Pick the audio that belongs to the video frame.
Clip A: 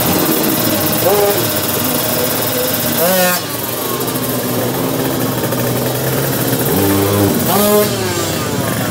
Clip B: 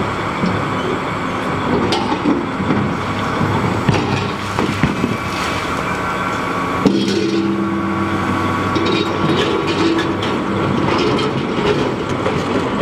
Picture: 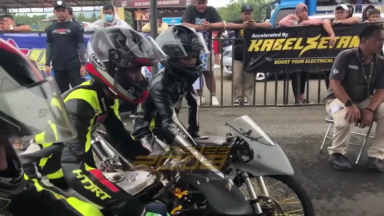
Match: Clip A